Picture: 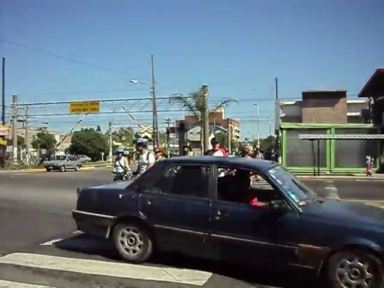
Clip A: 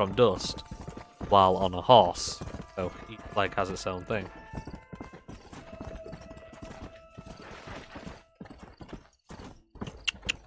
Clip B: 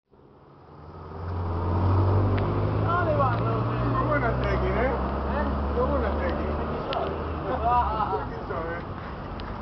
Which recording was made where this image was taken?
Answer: B